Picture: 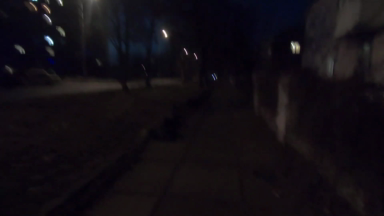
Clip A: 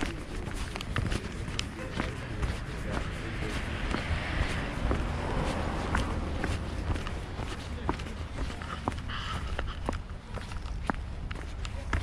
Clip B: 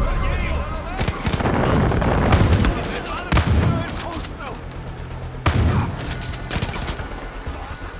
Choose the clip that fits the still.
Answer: A